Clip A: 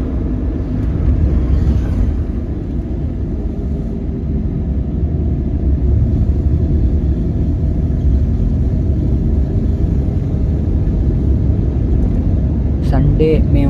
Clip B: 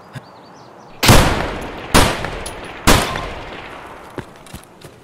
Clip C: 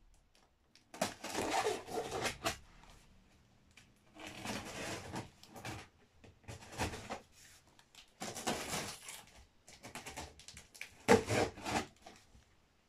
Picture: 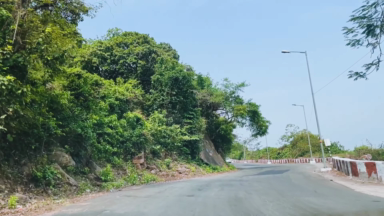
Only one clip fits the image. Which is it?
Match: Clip A